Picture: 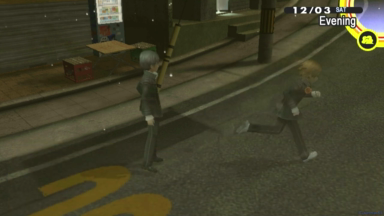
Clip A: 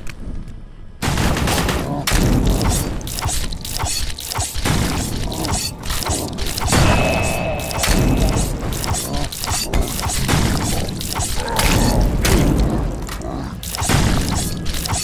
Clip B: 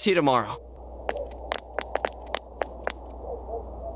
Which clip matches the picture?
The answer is B